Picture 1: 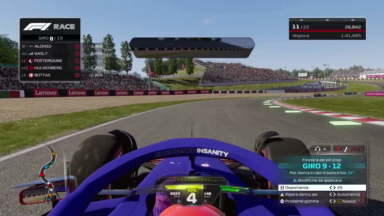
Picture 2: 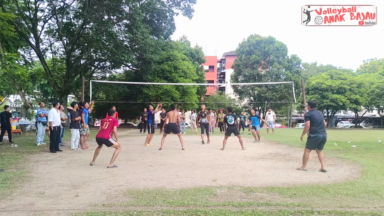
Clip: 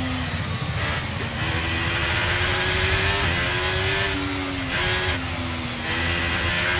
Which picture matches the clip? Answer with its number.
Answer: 1